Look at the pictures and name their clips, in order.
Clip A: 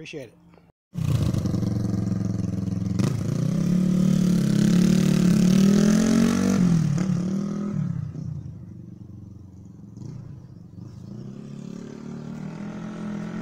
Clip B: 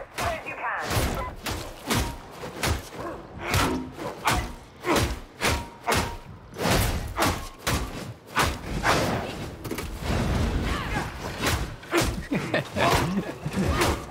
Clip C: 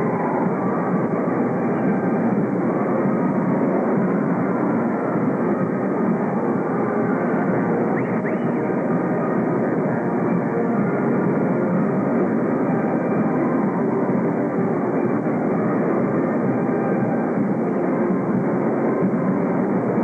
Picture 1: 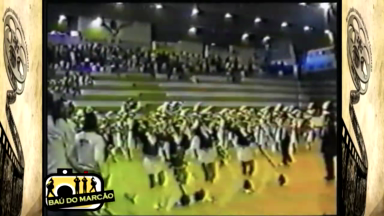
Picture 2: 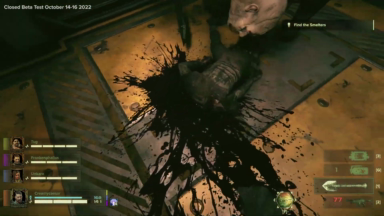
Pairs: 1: C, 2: B